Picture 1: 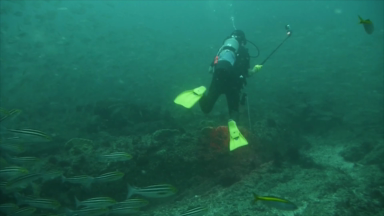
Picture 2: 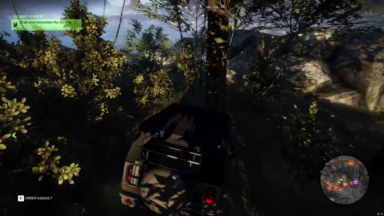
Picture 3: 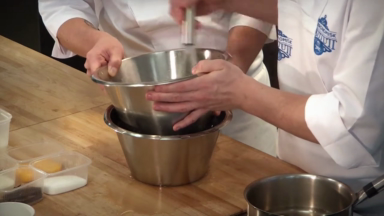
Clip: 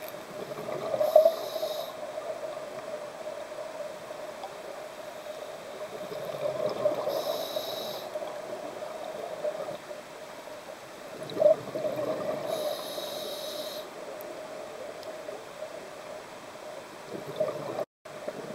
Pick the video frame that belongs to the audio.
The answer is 1